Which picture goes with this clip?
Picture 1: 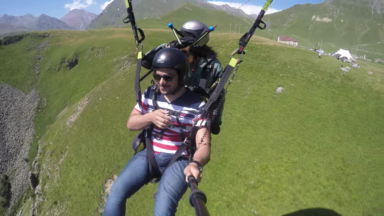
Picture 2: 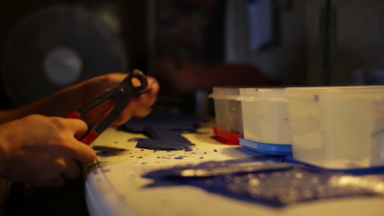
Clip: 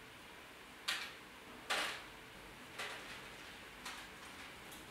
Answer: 2